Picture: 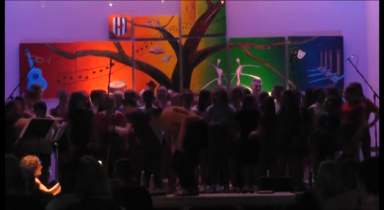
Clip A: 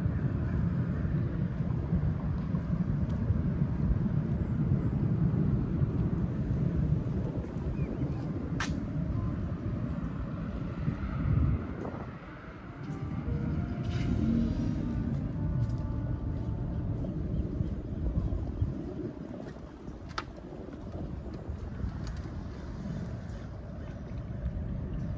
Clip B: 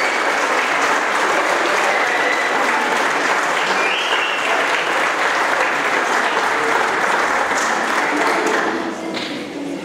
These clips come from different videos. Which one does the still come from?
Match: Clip B